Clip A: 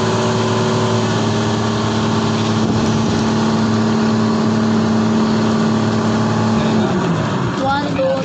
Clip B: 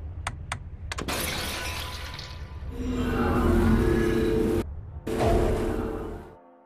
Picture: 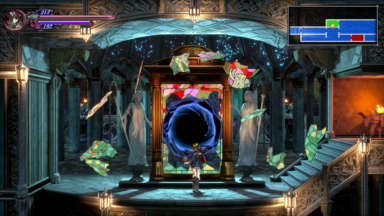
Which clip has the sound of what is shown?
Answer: B